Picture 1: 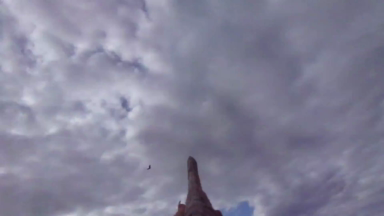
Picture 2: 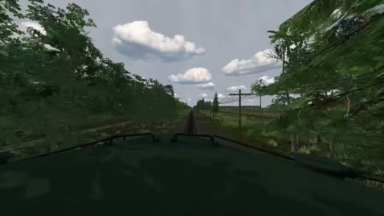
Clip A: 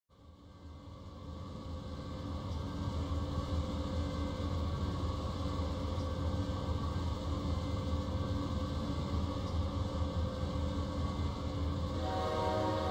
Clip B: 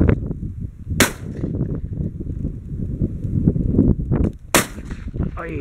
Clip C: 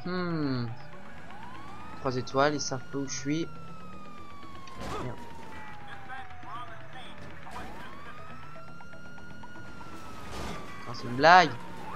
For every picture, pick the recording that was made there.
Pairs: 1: B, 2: A